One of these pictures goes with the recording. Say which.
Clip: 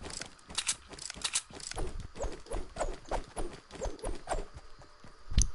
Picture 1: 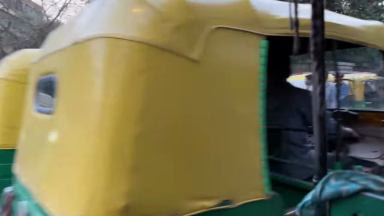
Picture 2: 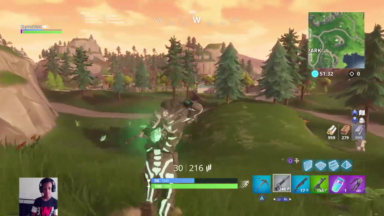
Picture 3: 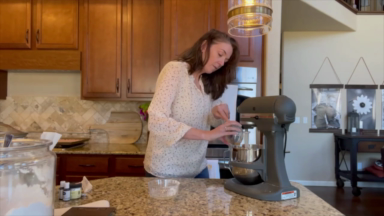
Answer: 2